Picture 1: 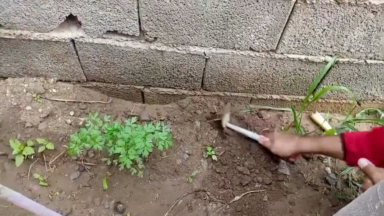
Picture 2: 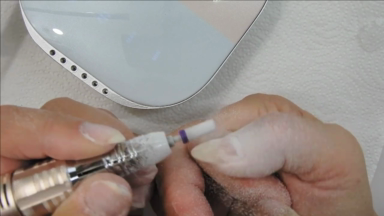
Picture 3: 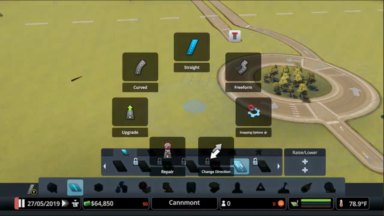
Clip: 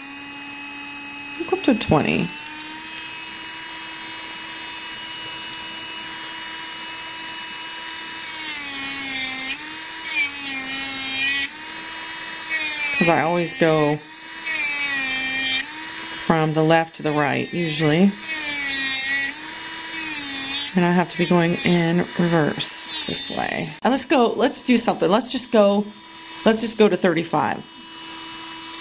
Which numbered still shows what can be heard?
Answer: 2